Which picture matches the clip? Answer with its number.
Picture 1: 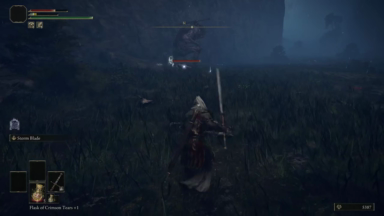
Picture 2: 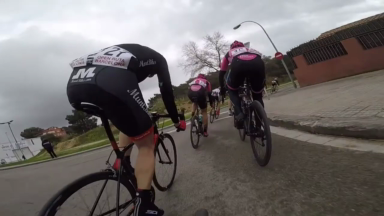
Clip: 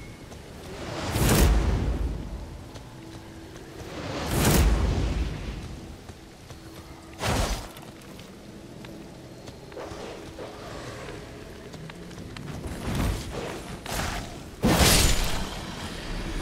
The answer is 1